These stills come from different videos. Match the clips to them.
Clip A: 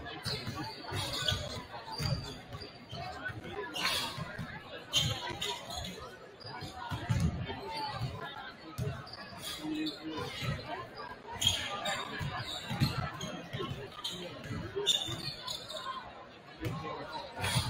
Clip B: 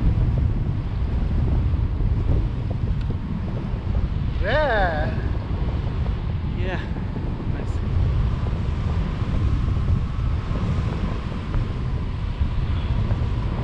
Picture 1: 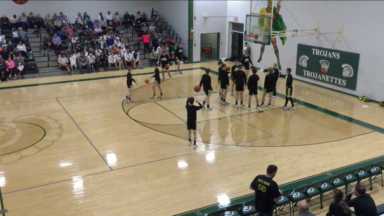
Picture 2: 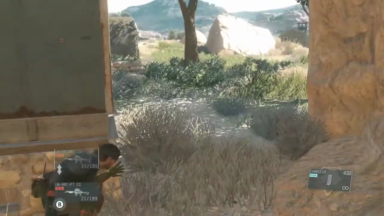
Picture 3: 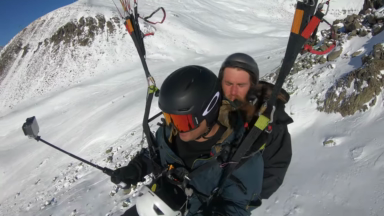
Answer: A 1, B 3